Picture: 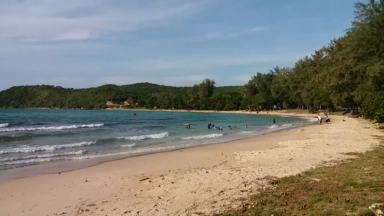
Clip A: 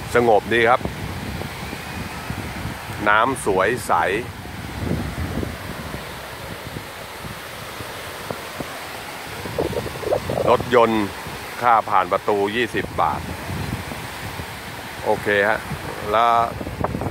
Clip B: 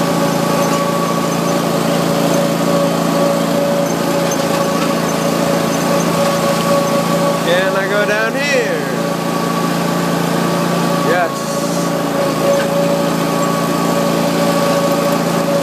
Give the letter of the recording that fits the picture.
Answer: A